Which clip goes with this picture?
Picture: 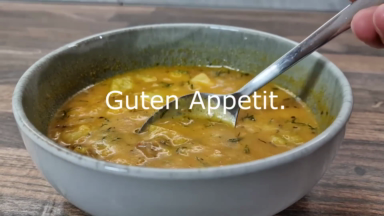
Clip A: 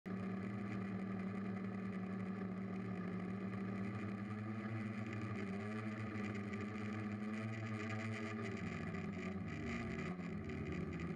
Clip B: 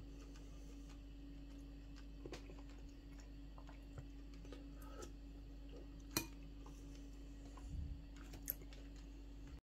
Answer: B